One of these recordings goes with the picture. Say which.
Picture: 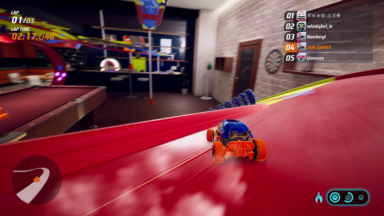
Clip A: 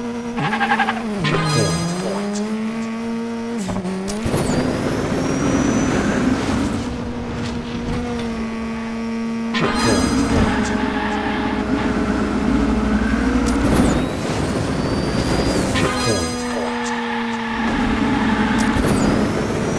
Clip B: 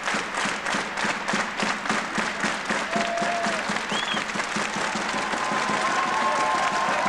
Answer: A